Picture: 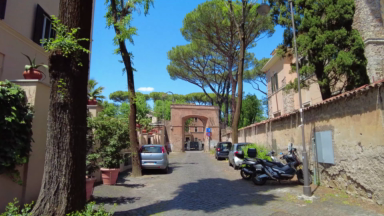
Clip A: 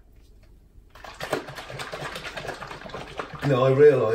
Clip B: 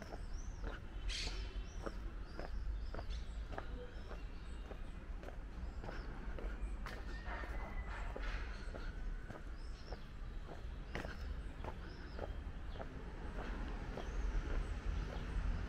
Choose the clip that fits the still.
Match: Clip B